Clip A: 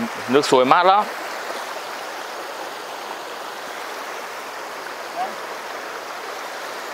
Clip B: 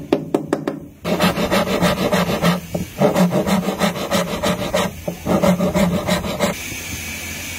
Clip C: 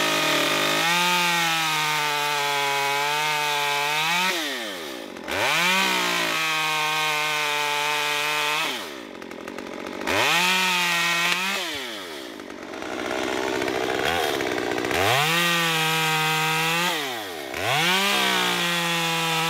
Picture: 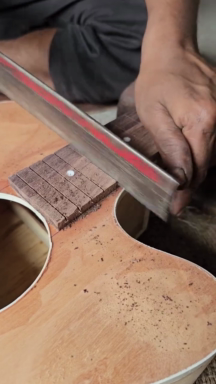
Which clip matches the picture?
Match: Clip B